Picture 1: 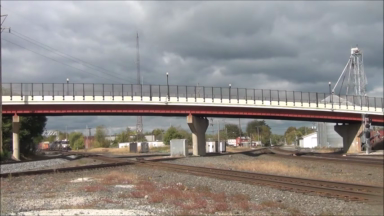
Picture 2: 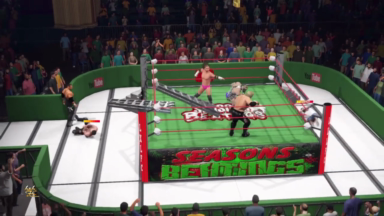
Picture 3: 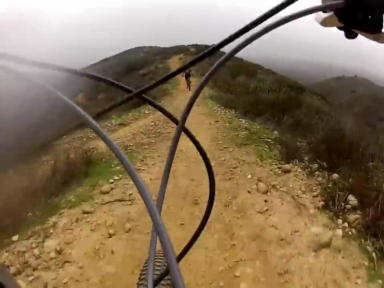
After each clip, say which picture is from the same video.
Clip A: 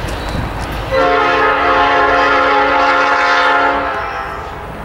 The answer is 1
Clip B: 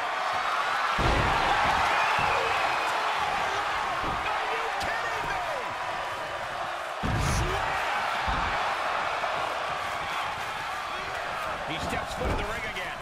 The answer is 2